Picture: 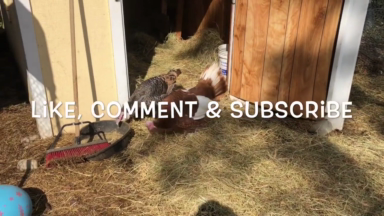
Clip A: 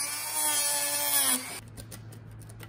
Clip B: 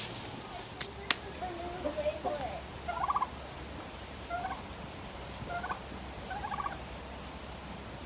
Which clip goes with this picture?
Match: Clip B